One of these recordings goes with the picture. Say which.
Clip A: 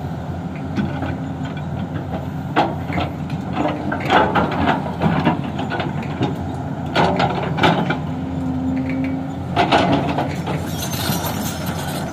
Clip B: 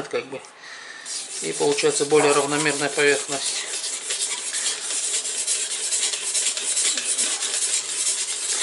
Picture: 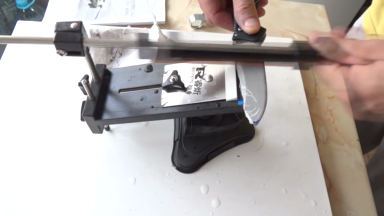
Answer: B